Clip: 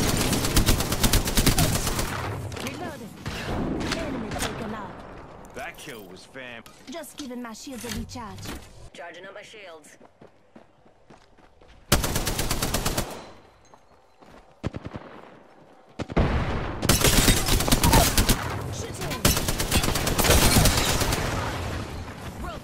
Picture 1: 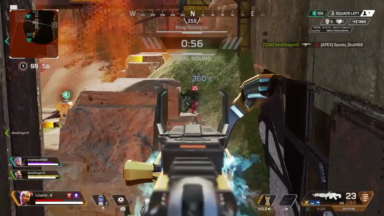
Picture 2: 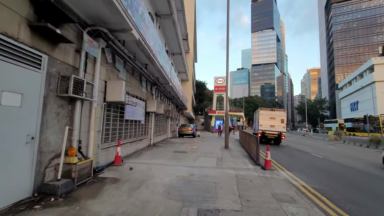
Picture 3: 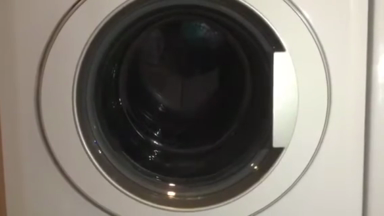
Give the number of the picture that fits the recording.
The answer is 1